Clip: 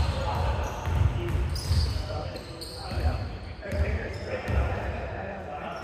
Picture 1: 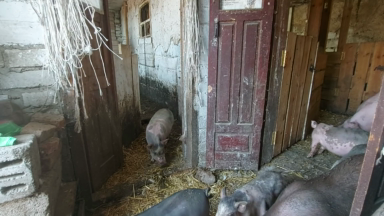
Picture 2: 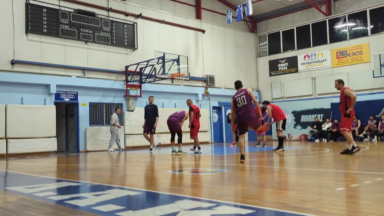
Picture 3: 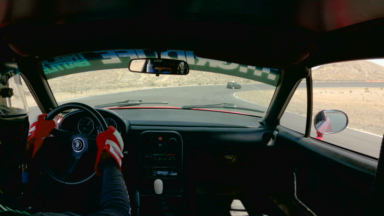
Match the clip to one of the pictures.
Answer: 2